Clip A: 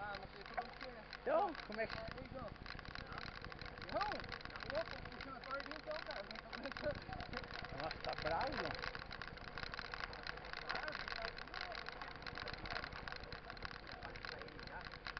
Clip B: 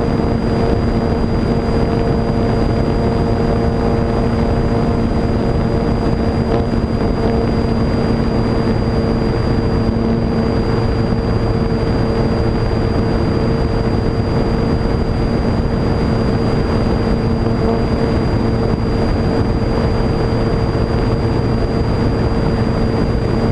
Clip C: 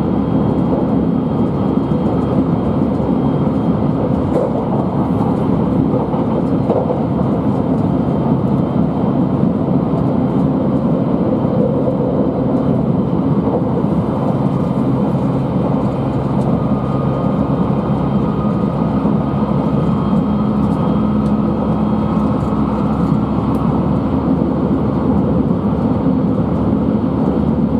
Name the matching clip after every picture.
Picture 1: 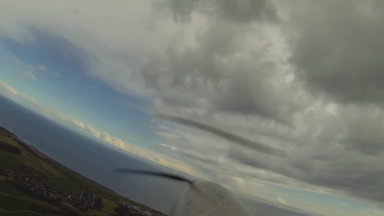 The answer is B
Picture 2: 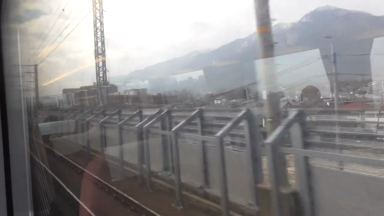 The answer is C